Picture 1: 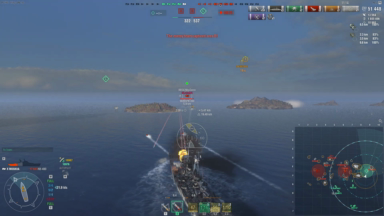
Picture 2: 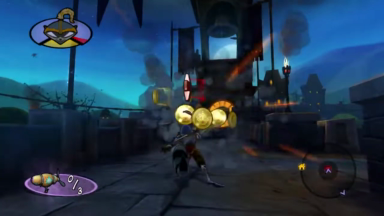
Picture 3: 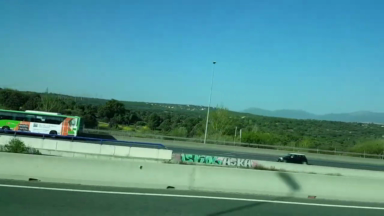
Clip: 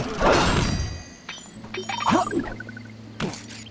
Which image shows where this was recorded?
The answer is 2